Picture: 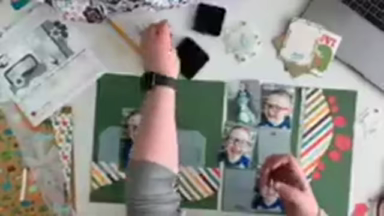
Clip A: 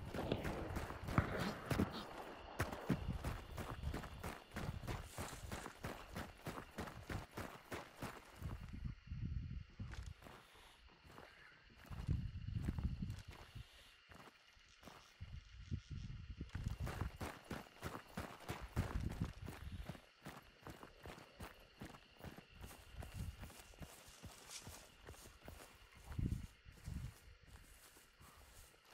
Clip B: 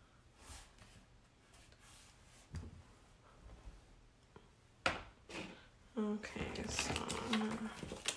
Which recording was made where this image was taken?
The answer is B